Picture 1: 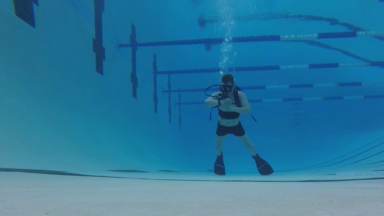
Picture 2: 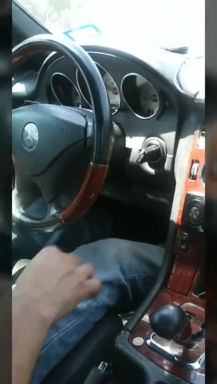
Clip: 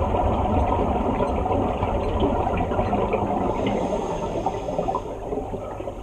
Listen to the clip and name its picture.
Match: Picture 1